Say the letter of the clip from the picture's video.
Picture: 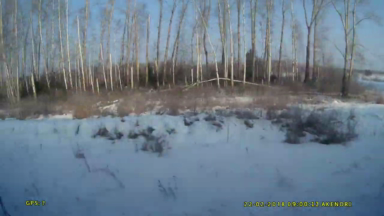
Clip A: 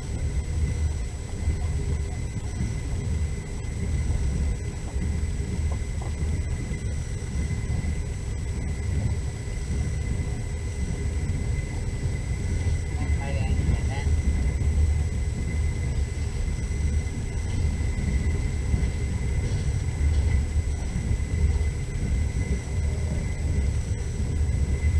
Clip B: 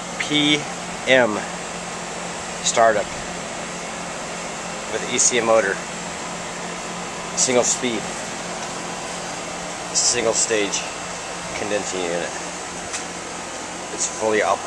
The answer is A